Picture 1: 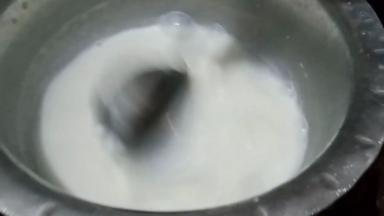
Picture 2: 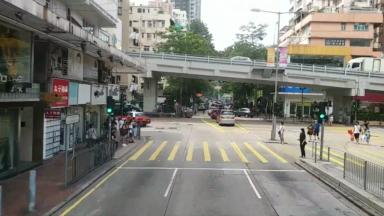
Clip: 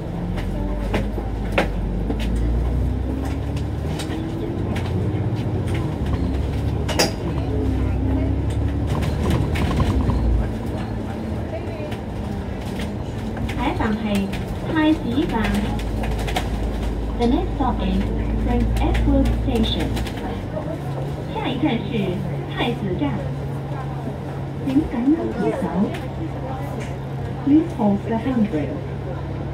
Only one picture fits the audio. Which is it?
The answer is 2